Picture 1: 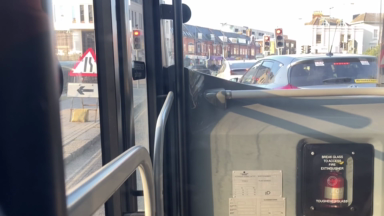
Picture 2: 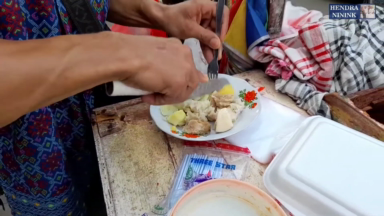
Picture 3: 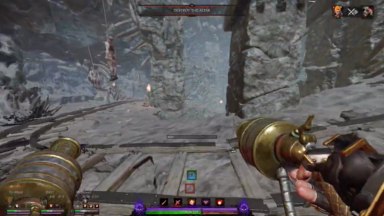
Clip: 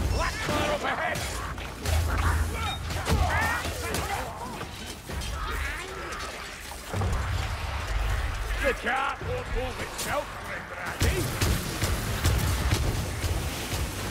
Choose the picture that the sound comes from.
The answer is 3